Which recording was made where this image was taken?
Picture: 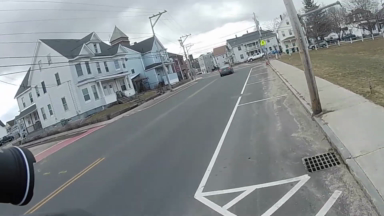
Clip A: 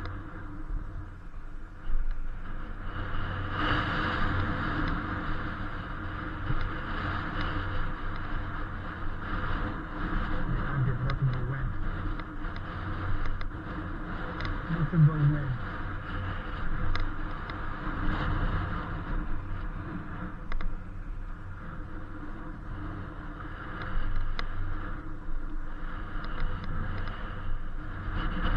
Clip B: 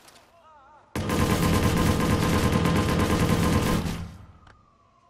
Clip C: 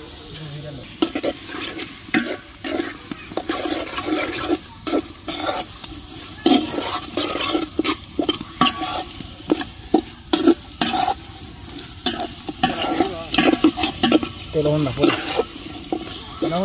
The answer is A